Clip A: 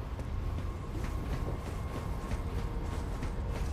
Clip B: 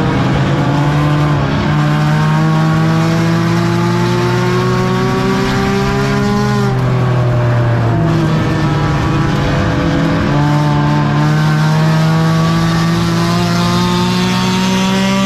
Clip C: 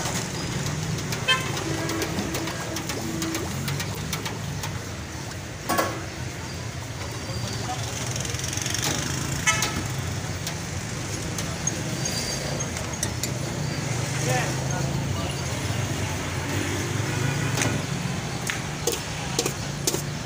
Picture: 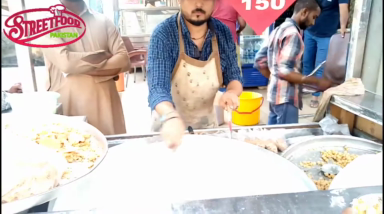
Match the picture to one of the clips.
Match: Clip C